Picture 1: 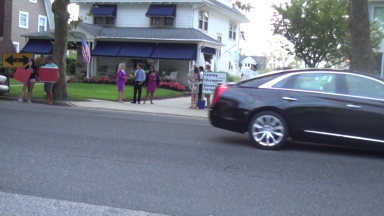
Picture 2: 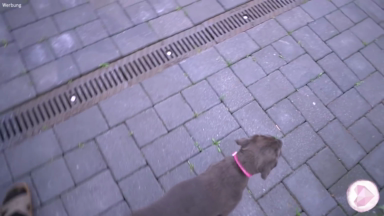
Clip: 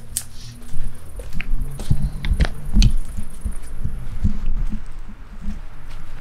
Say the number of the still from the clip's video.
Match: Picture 2